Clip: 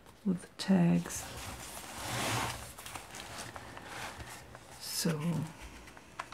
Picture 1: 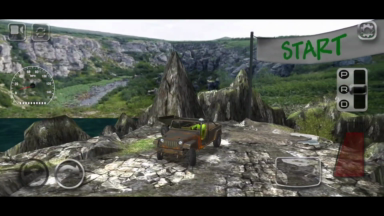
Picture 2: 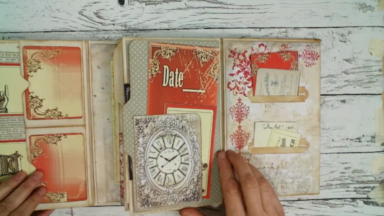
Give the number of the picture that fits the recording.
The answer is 2